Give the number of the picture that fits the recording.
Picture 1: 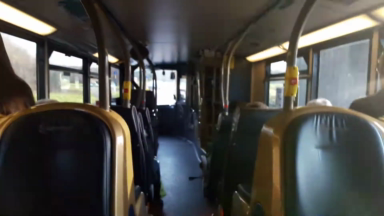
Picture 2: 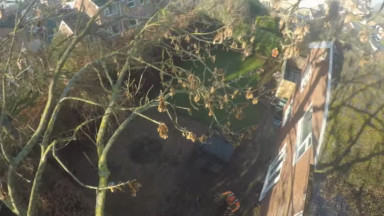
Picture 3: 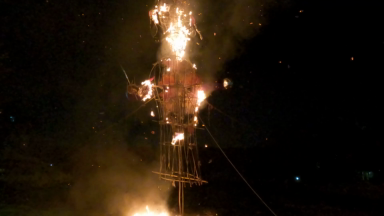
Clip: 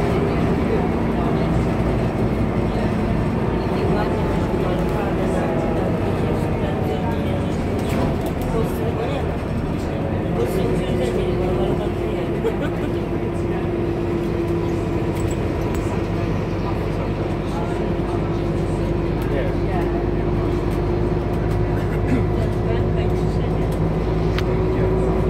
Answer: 1